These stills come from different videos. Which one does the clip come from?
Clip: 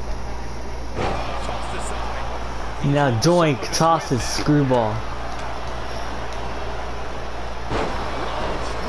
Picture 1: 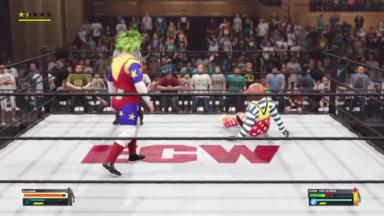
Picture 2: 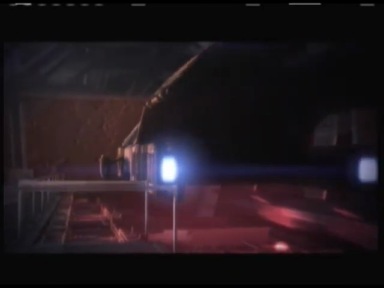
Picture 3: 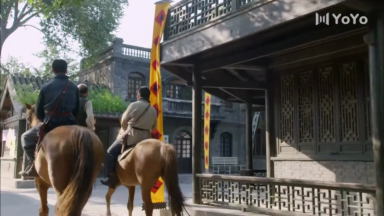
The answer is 1